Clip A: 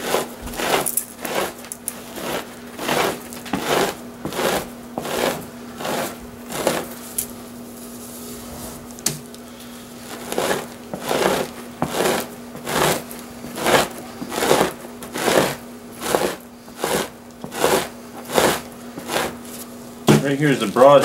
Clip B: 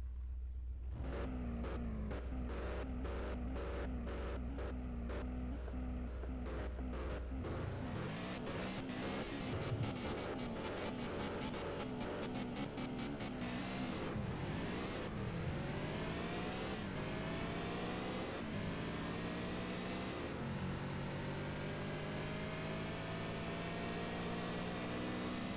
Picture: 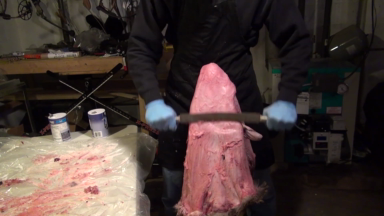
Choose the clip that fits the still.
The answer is A